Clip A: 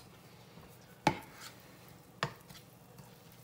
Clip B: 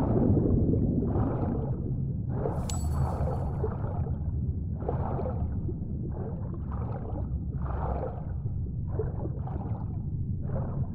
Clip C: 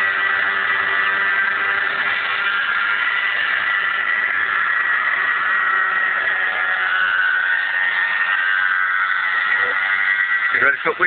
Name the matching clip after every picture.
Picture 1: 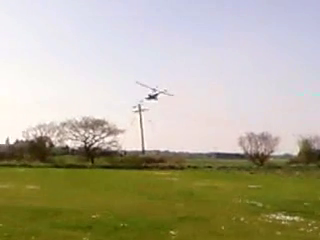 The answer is C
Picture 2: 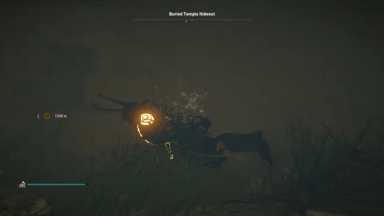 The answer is B